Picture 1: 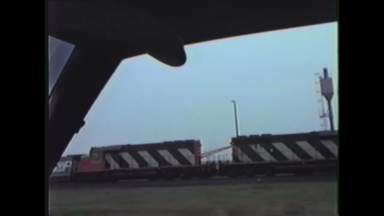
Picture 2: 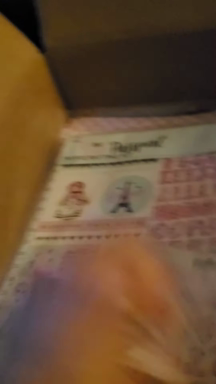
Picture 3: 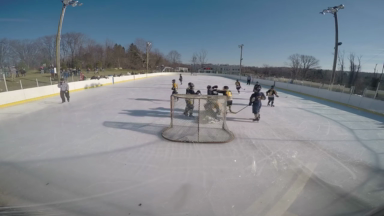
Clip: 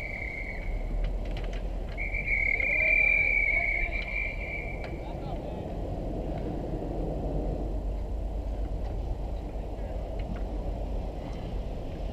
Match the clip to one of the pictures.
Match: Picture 3